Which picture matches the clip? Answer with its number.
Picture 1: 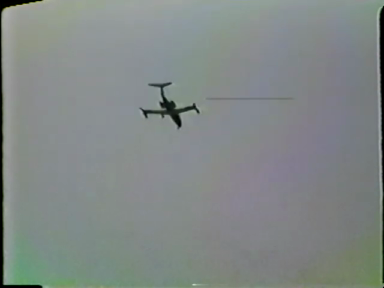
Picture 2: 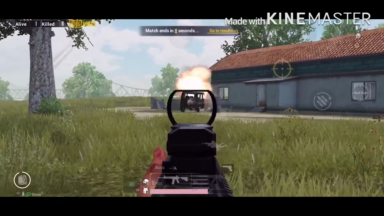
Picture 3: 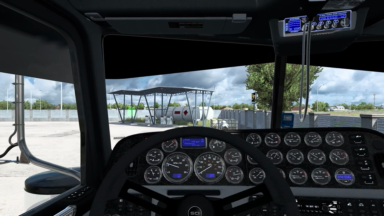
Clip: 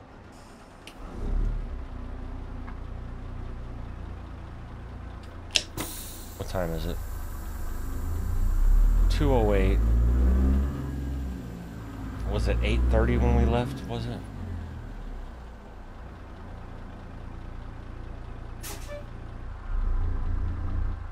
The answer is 3